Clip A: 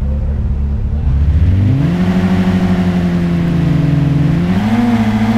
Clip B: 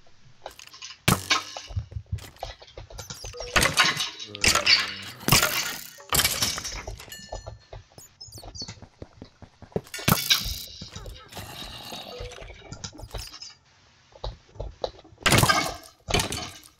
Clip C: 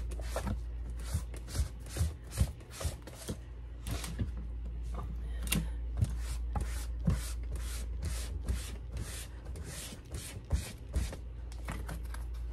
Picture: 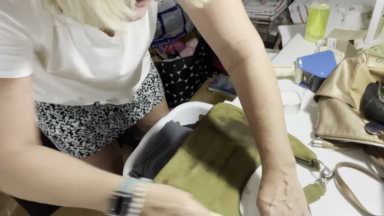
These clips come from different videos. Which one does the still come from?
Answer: C